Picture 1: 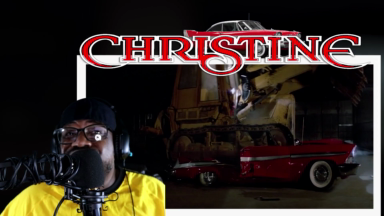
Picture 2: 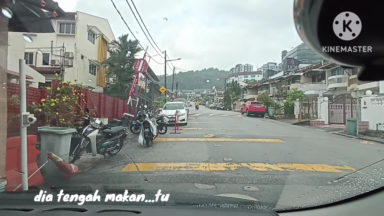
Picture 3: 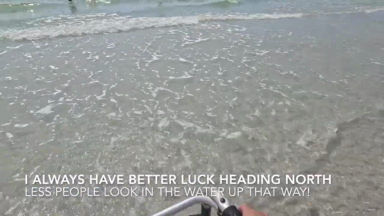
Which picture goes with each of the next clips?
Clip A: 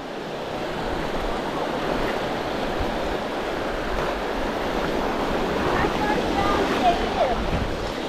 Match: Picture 3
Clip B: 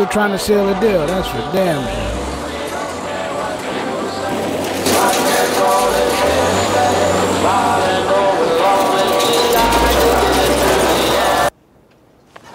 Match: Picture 1